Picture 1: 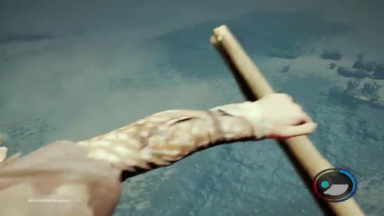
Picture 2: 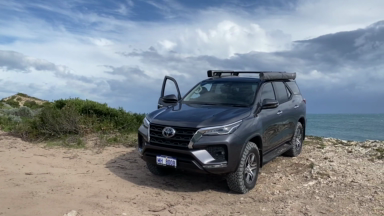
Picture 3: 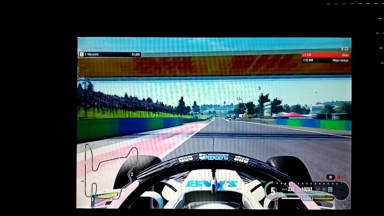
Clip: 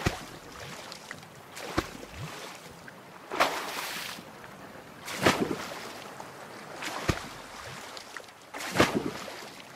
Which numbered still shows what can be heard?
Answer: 1